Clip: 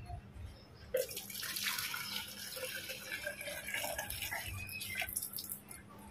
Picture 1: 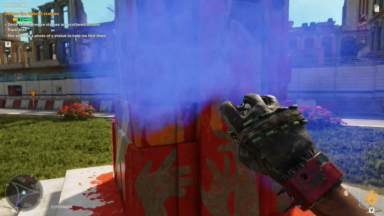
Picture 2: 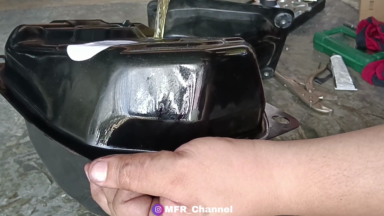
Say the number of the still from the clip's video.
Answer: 2